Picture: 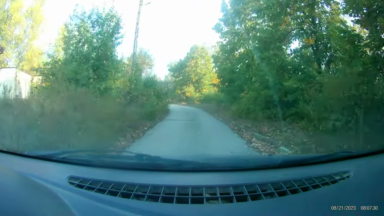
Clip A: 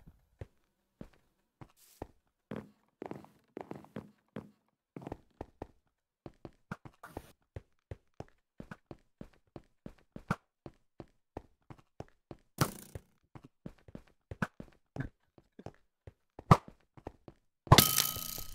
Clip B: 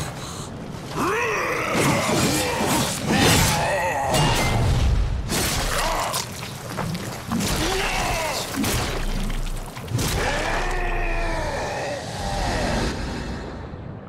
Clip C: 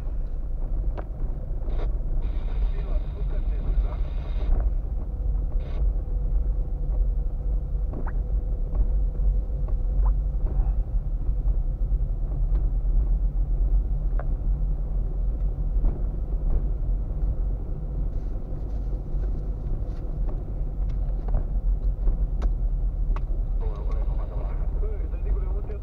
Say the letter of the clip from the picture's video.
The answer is C